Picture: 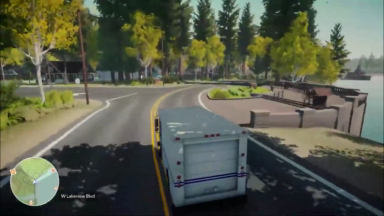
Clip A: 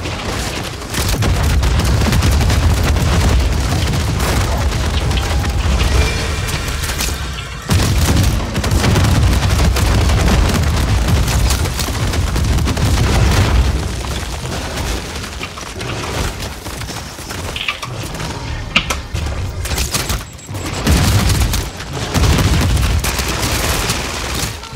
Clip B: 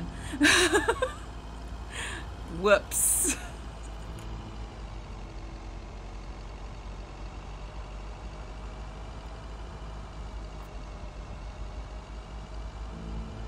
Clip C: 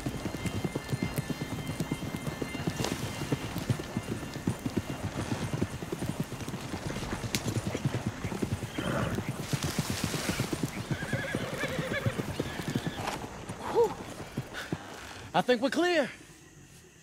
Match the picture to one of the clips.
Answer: B